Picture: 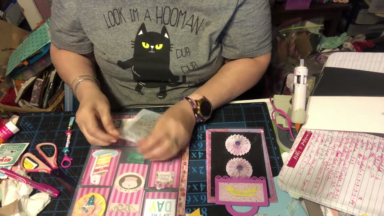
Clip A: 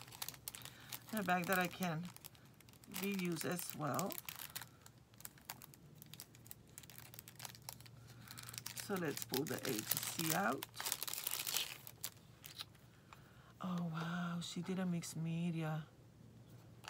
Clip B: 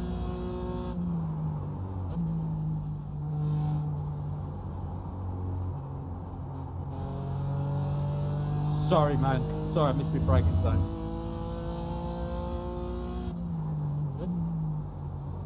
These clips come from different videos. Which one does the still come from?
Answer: A